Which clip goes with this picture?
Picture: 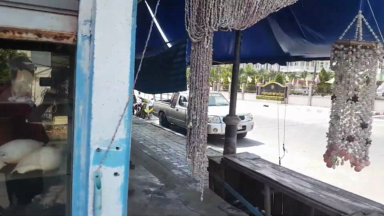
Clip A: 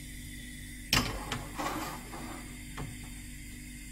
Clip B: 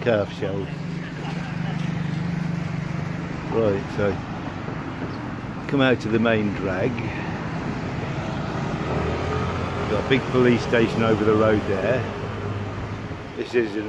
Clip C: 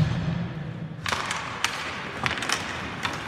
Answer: B